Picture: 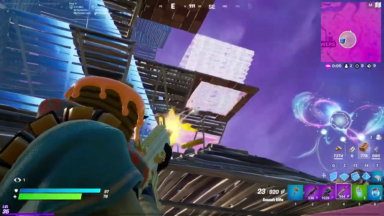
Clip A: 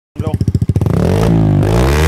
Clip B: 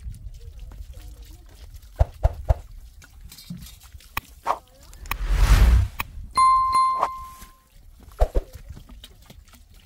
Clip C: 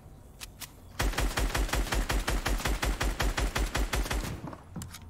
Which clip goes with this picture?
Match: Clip C